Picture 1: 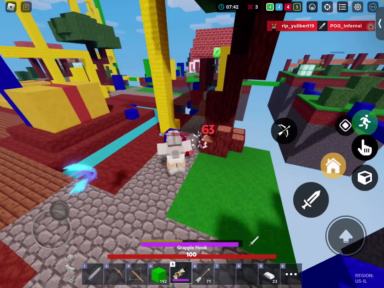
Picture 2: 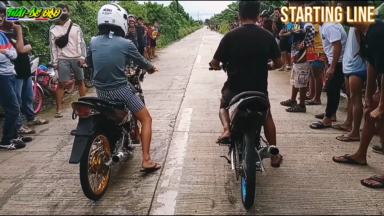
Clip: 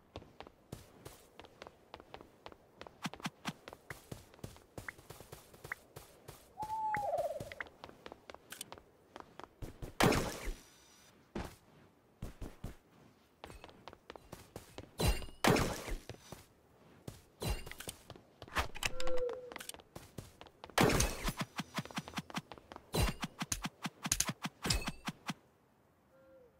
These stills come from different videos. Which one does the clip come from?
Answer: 1